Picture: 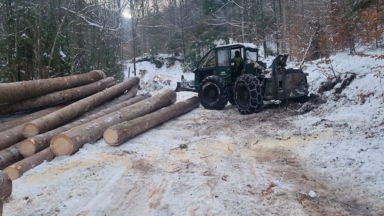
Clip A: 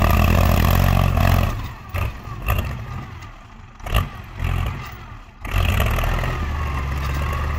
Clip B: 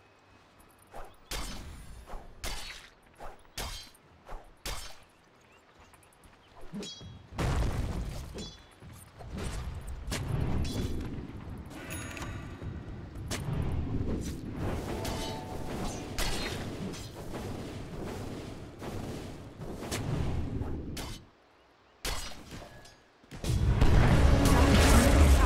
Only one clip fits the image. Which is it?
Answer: A